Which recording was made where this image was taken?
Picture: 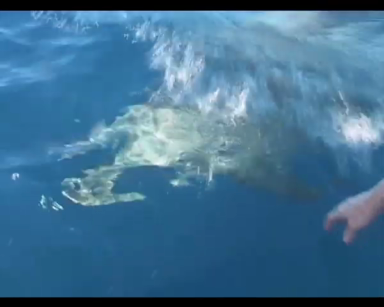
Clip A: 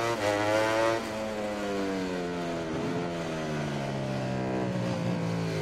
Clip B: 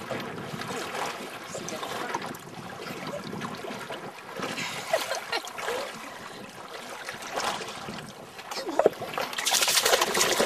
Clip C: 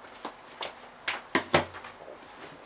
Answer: B